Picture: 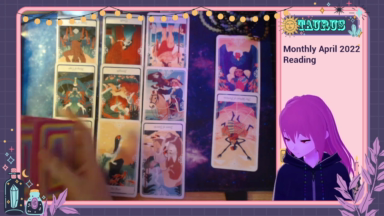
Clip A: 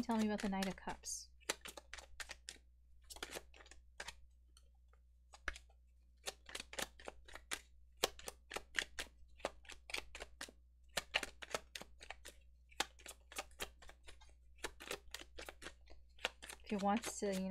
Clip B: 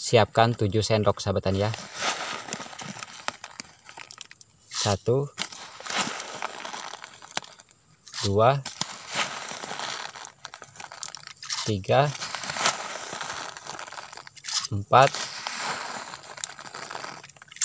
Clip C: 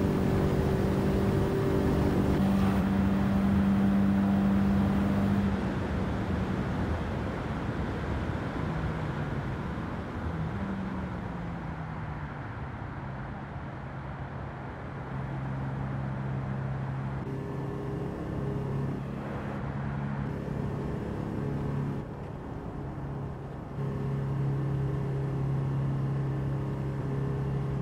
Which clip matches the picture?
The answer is A